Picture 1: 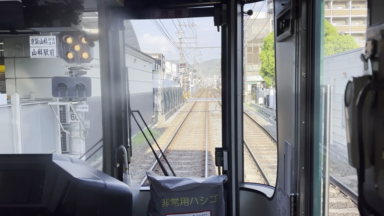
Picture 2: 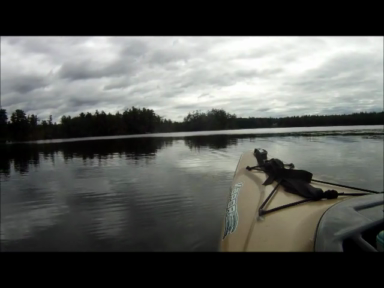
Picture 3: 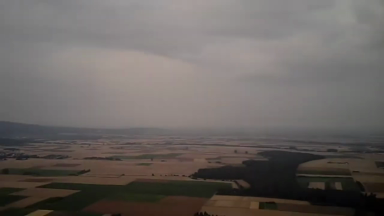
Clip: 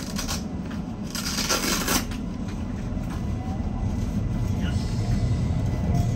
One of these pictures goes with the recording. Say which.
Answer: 1